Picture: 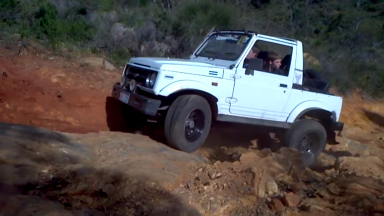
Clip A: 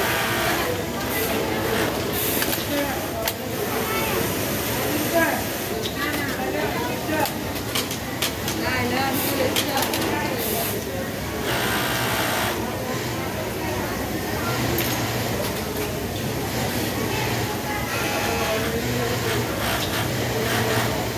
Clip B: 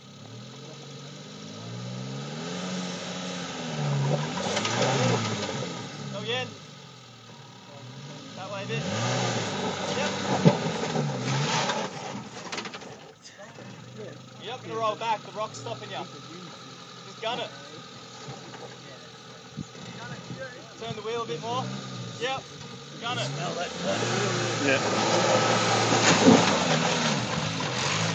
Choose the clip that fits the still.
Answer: B